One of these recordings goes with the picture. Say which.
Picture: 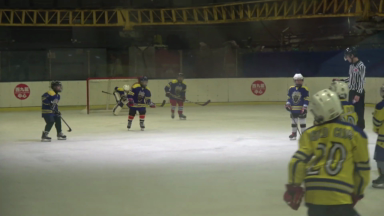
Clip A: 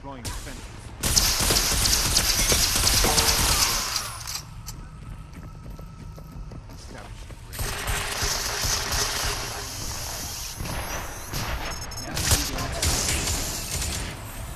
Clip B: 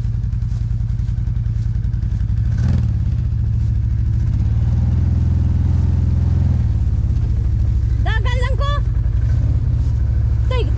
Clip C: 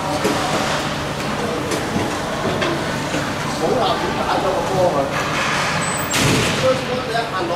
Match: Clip C